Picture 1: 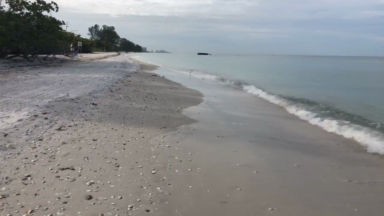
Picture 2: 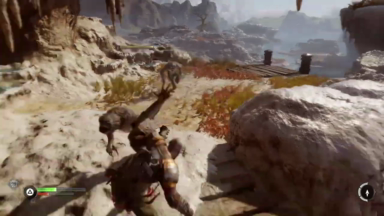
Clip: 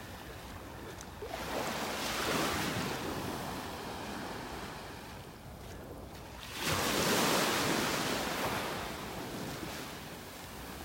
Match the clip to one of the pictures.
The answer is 1